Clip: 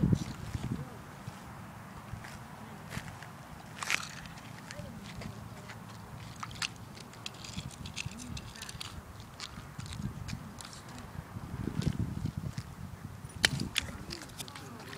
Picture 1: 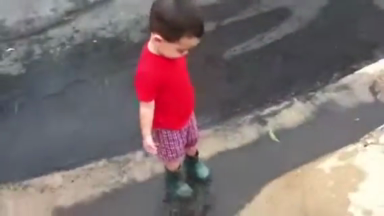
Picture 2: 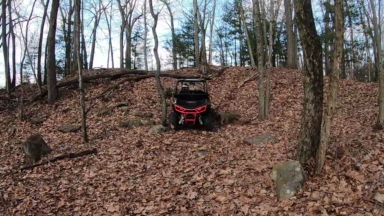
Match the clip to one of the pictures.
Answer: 1